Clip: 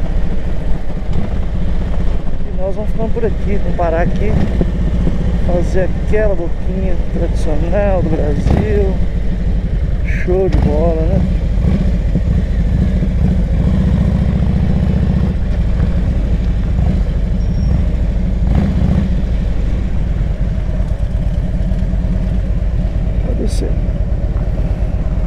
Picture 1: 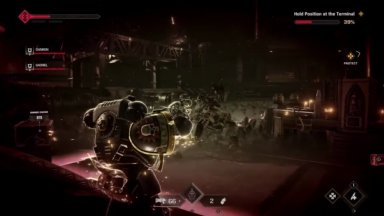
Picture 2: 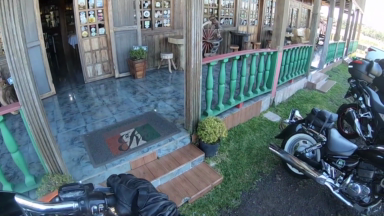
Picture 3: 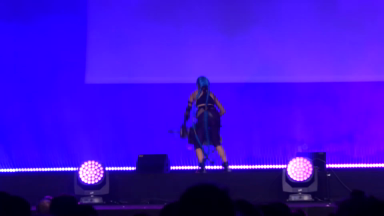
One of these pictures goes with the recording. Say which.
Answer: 2